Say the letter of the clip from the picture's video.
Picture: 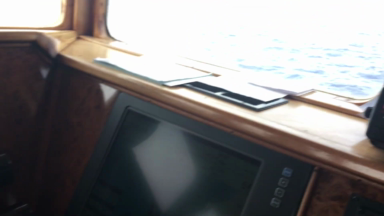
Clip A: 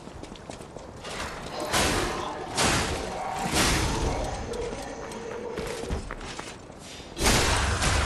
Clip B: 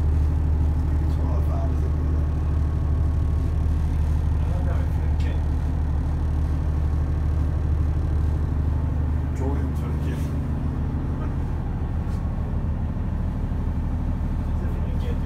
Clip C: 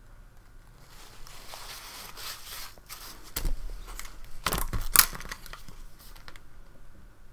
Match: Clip B